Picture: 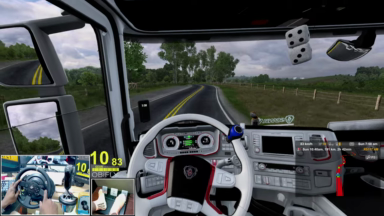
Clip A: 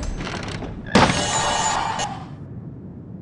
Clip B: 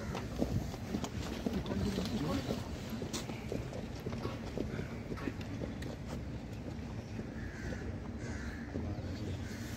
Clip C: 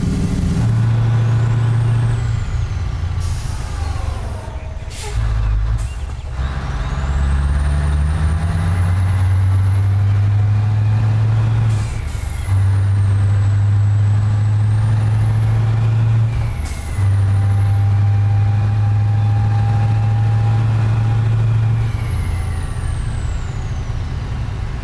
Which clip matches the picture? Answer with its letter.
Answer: C